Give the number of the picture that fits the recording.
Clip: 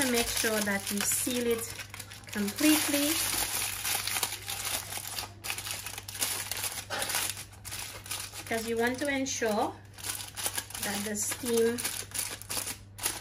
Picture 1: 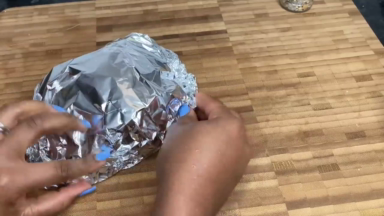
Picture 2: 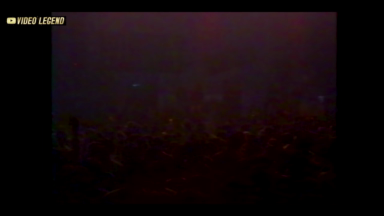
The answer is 1